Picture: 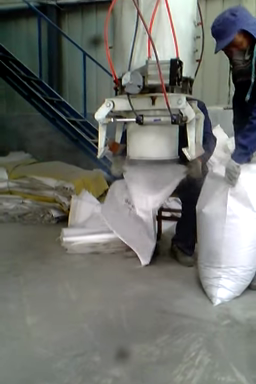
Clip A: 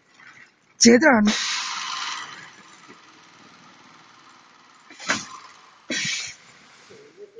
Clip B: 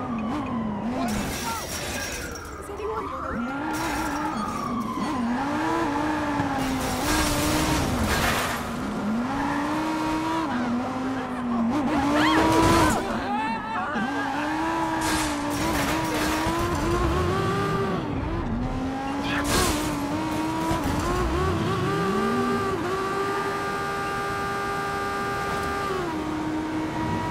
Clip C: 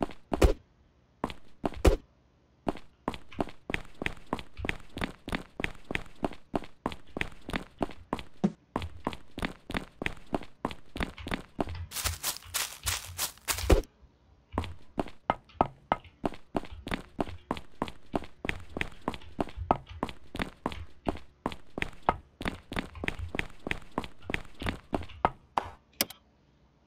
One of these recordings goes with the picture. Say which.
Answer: A